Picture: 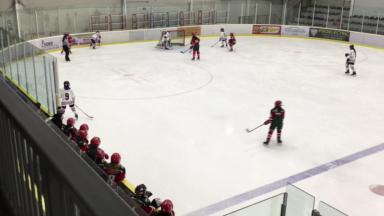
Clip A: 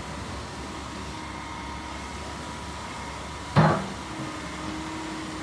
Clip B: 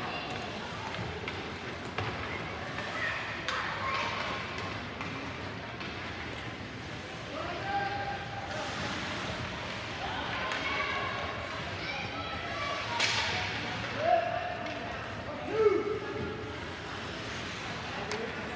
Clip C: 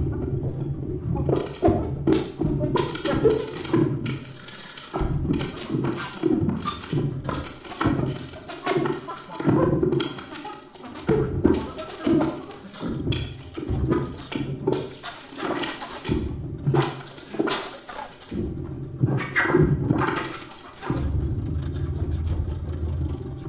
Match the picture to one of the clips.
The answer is B